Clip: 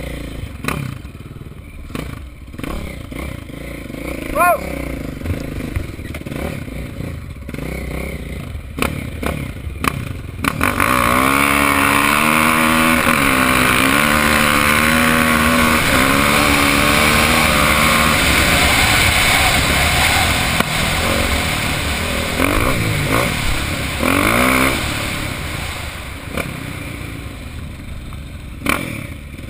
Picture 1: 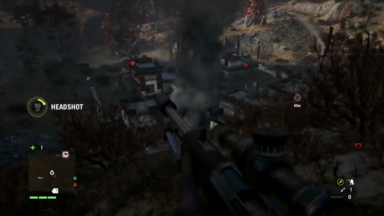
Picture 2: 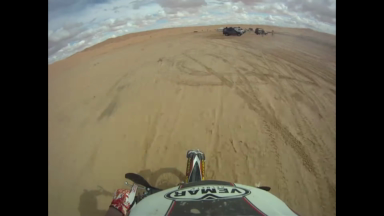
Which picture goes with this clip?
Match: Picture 2